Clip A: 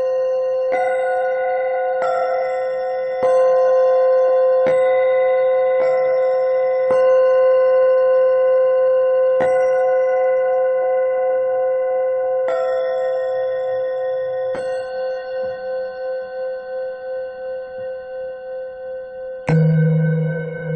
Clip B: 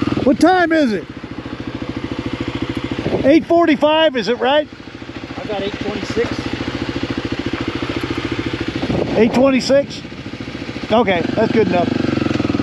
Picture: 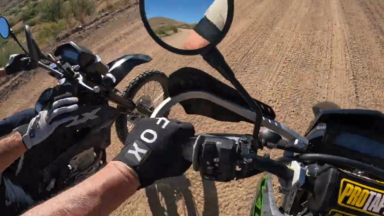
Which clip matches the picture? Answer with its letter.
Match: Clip B